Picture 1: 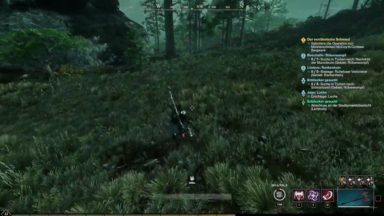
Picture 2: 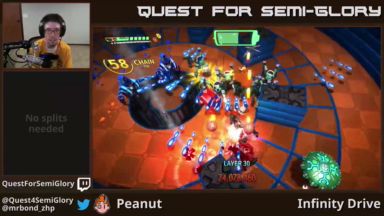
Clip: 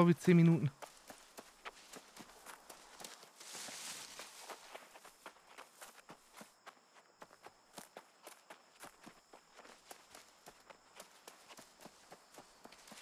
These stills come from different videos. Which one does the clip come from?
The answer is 1